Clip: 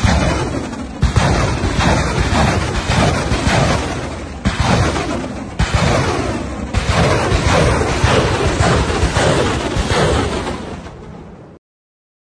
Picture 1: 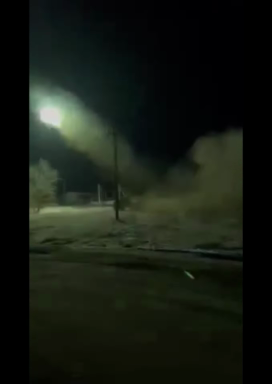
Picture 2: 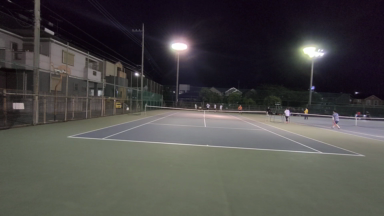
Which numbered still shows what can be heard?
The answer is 1